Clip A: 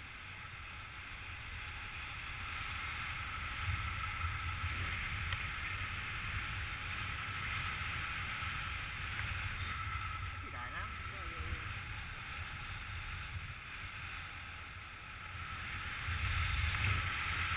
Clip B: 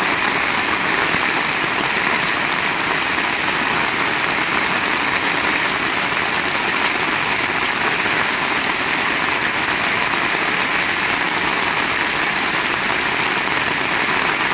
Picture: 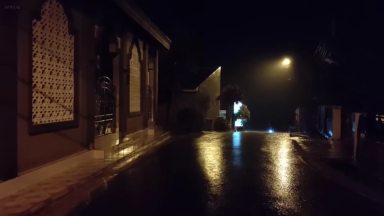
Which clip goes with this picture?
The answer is B